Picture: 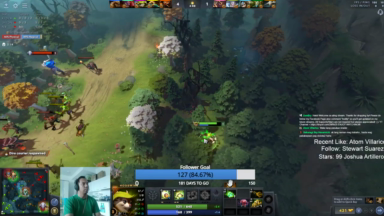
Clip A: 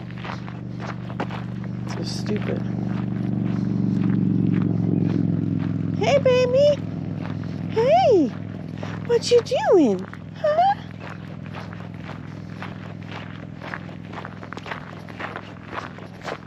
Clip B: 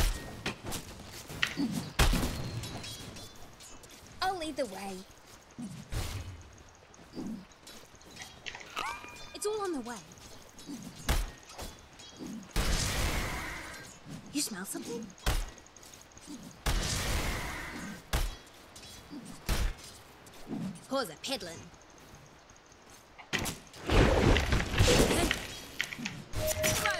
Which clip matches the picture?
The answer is B